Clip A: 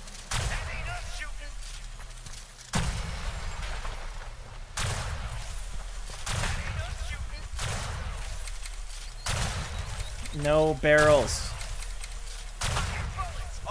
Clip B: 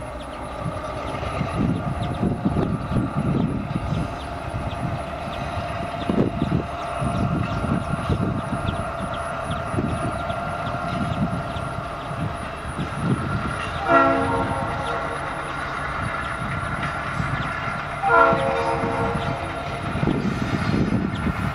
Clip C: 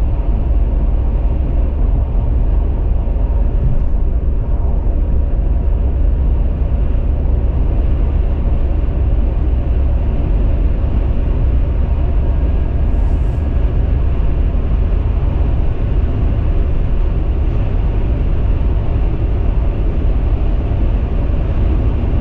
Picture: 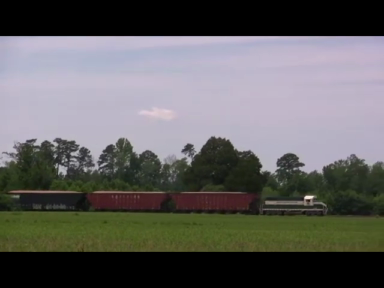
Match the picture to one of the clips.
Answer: B